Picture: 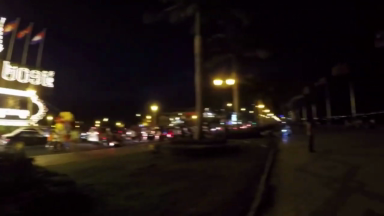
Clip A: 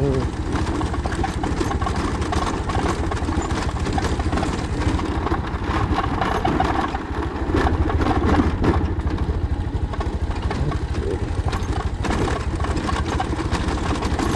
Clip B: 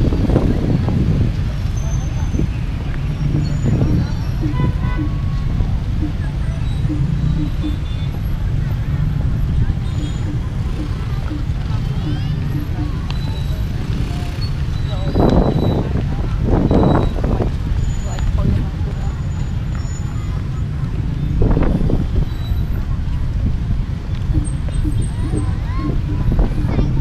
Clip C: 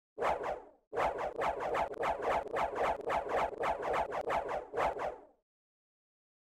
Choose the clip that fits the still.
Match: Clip B